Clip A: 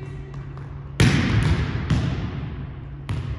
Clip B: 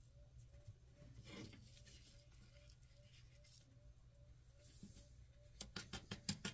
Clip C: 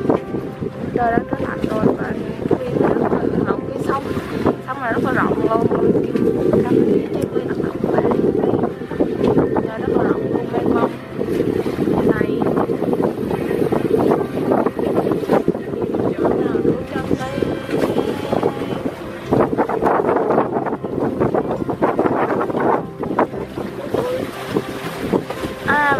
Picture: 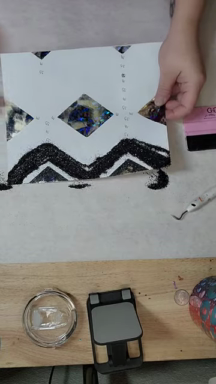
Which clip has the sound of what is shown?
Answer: B